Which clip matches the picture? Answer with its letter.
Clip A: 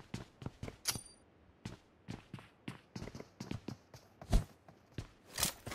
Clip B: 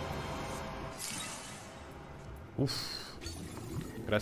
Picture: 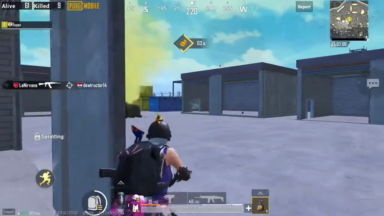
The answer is A